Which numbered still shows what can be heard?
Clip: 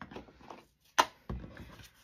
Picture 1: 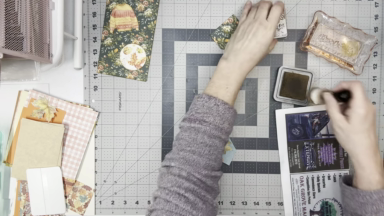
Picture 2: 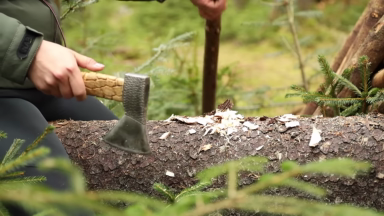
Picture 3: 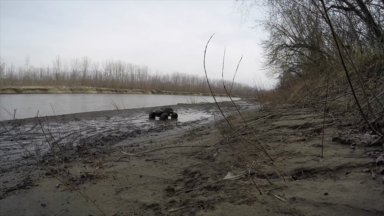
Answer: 1